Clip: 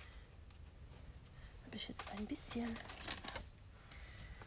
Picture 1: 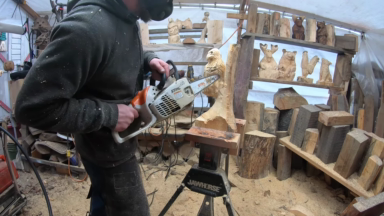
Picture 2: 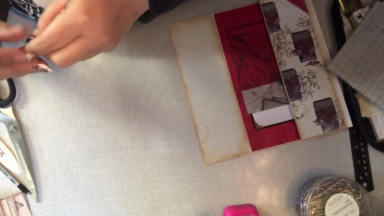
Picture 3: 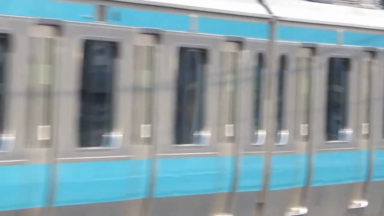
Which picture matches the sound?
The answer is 2